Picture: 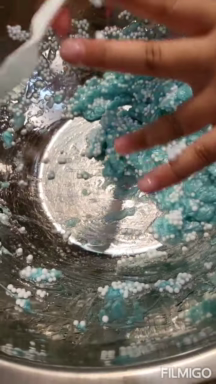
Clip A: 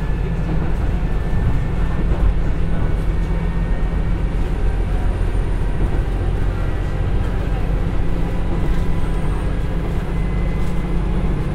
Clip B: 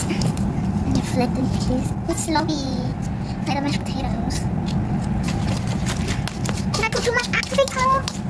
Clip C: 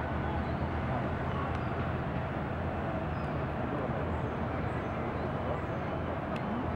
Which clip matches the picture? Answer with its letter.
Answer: B